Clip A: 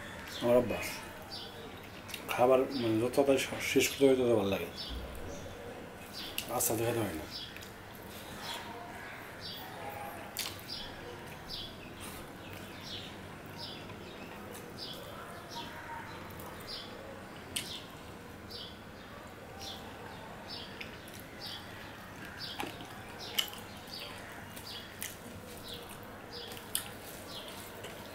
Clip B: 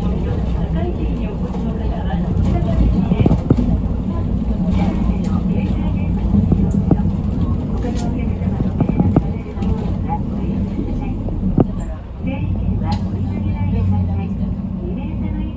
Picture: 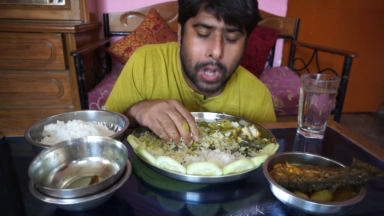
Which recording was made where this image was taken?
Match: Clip A